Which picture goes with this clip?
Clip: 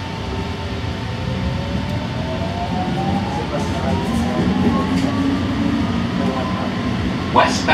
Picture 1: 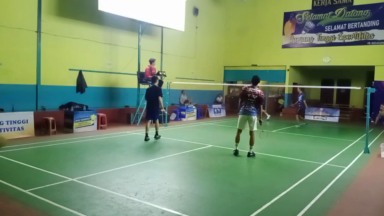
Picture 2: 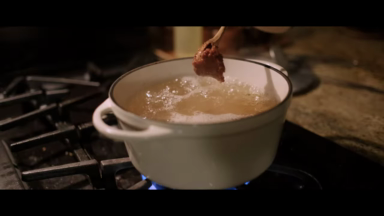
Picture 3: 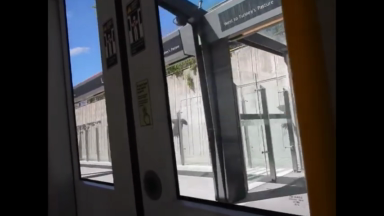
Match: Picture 3